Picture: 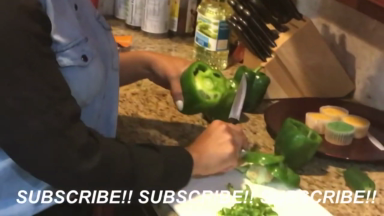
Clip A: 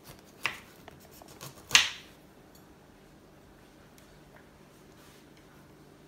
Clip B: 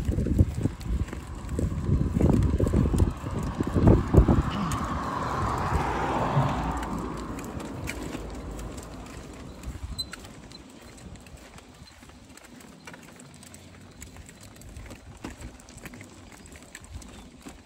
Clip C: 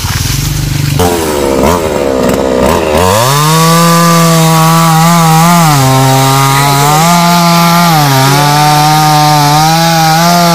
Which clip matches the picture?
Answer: A